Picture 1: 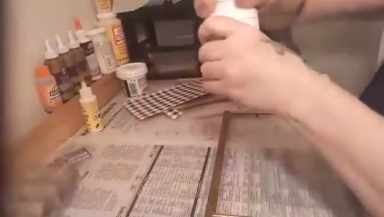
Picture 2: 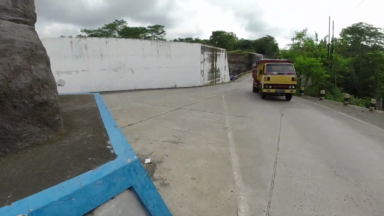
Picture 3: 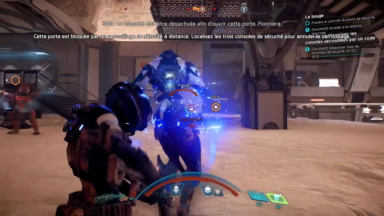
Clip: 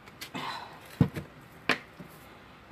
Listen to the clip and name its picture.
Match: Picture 1